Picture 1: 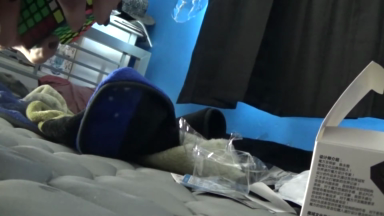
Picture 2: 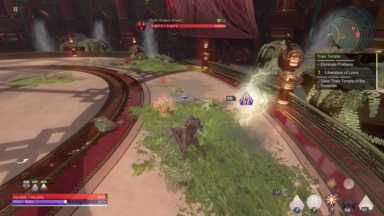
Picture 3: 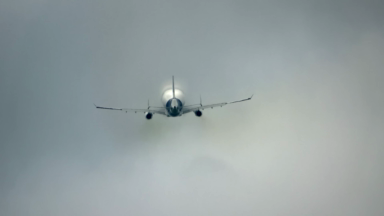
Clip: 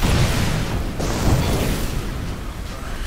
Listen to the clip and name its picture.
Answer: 2